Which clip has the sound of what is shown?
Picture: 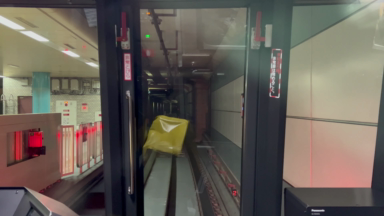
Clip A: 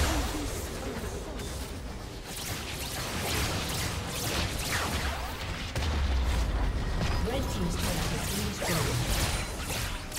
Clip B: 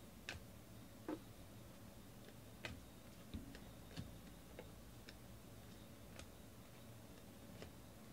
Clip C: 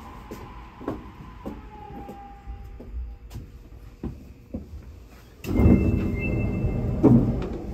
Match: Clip C